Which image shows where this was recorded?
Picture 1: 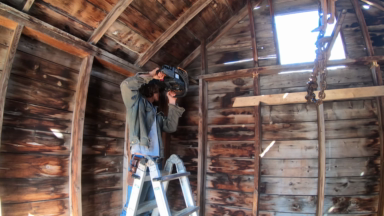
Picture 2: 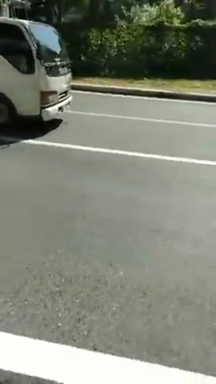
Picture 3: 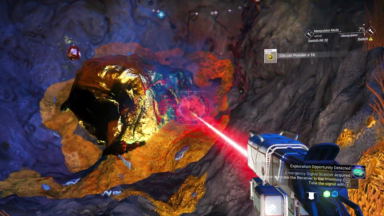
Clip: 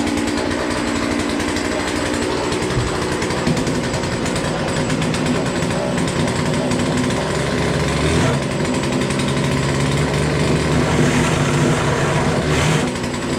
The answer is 1